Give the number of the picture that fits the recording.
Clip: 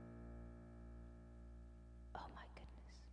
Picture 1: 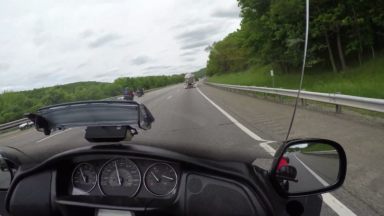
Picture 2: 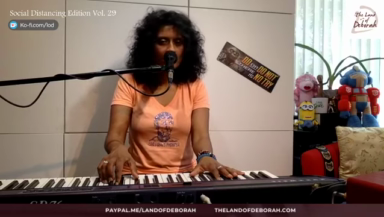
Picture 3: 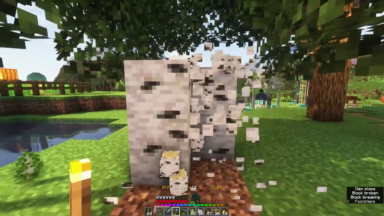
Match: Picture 2